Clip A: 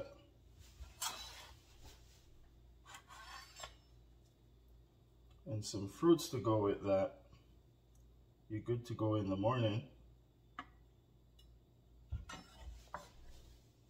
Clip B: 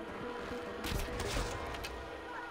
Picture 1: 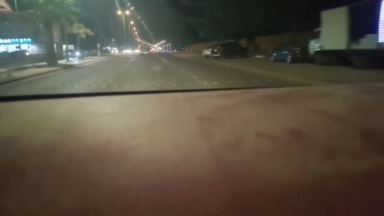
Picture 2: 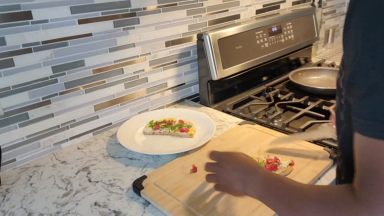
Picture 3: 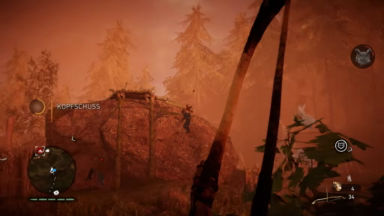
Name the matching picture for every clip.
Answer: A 2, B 3